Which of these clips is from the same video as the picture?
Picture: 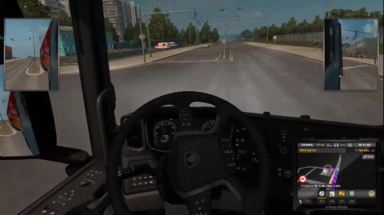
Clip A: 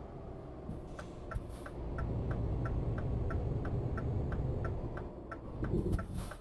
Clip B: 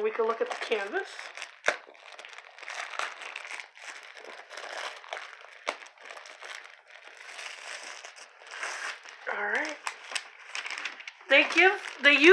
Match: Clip A